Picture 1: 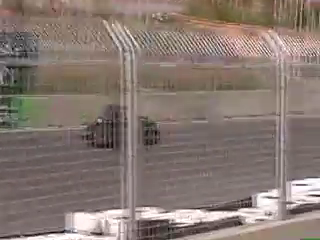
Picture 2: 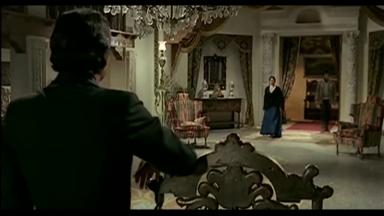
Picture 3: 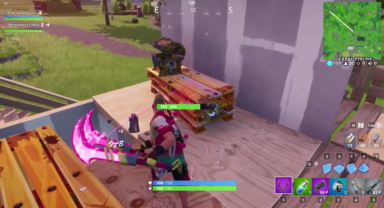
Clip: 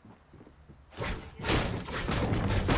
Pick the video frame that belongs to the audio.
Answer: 3